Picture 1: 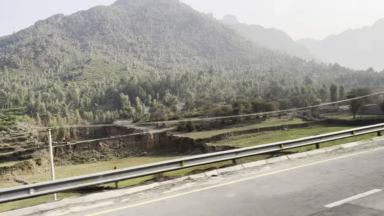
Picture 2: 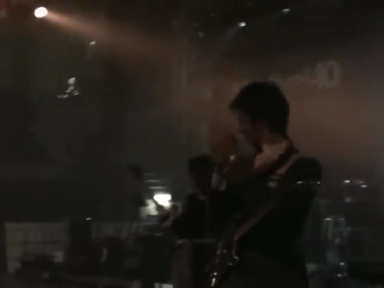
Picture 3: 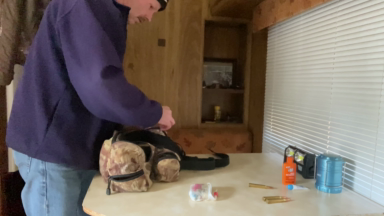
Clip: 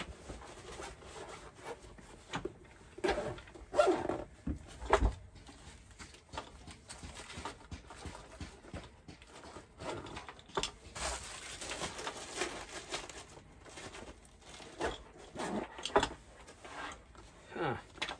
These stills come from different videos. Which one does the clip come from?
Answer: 3